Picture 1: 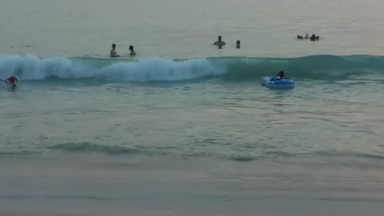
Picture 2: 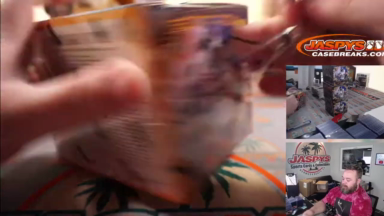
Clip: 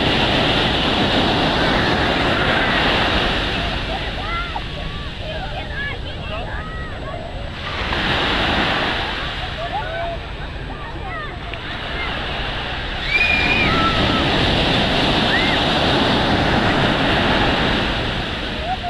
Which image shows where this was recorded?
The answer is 1